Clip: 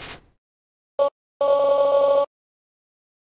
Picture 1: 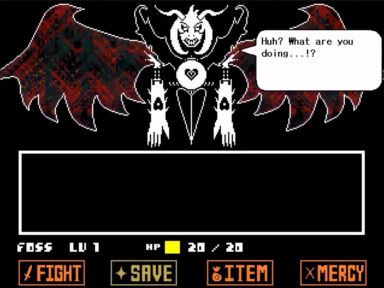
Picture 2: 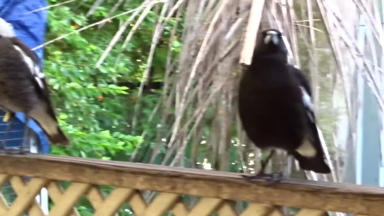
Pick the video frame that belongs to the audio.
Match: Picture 1